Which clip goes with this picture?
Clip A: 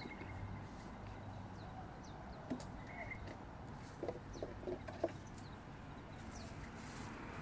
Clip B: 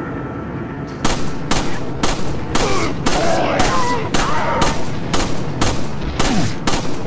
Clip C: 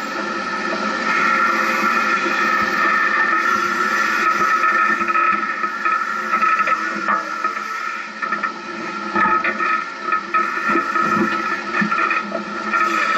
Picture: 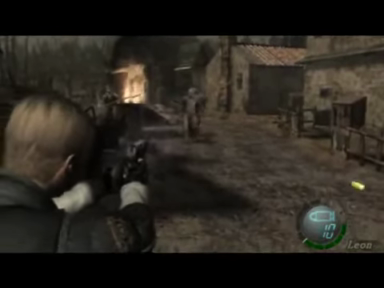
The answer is B